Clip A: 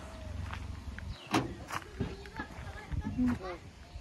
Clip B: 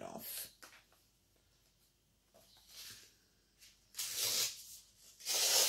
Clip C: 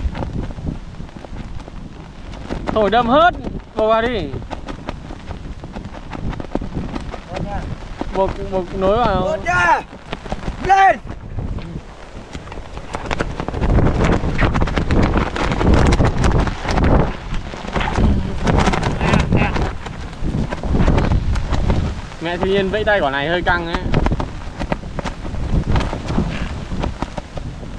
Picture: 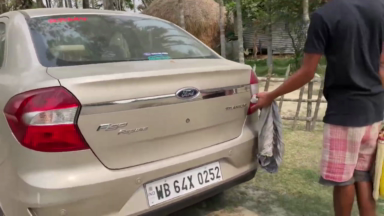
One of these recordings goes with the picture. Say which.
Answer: A